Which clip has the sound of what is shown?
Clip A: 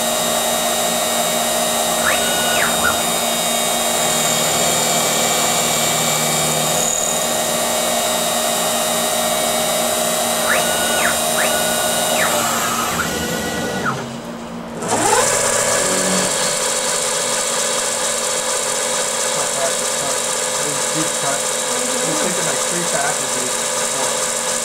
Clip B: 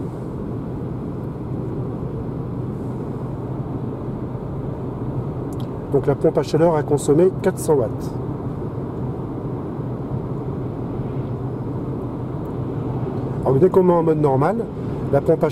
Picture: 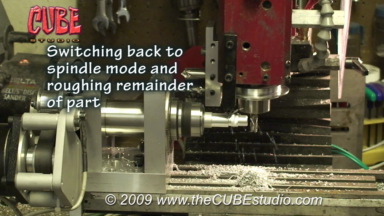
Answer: A